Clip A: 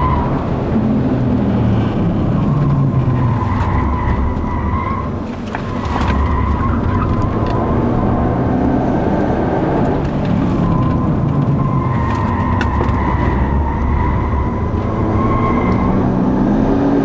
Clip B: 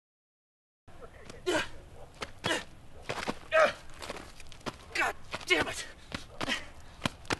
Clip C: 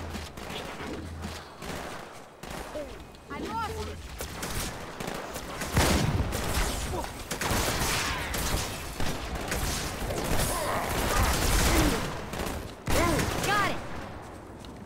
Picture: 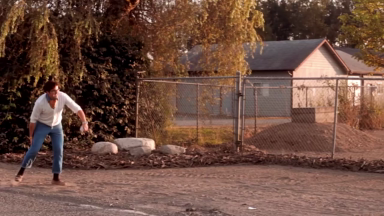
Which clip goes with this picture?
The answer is B